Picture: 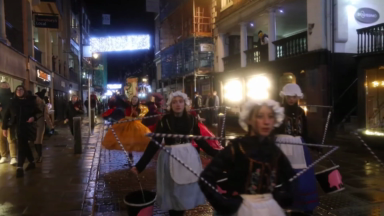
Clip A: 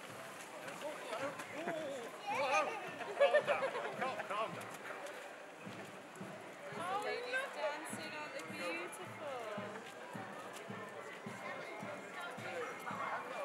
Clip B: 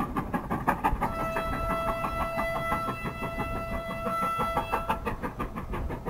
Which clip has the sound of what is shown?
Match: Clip A